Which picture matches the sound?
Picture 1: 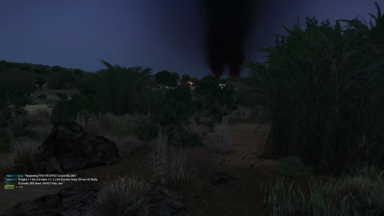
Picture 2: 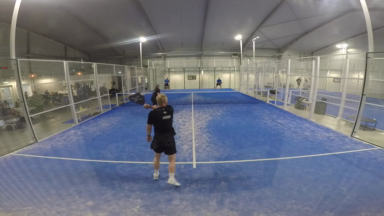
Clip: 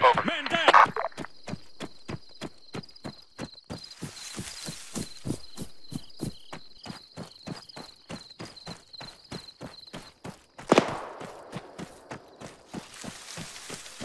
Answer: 1